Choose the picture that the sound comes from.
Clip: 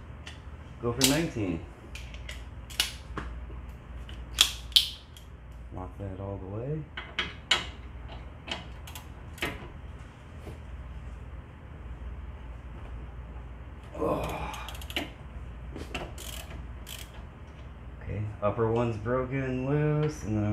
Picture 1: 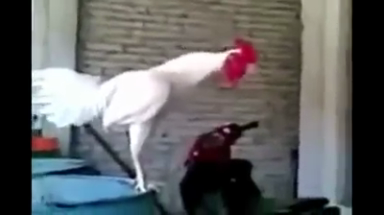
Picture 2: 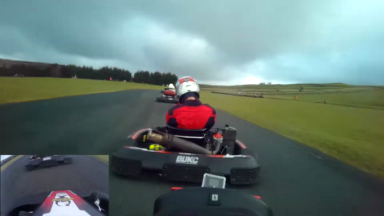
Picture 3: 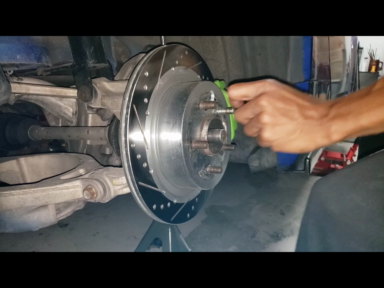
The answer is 3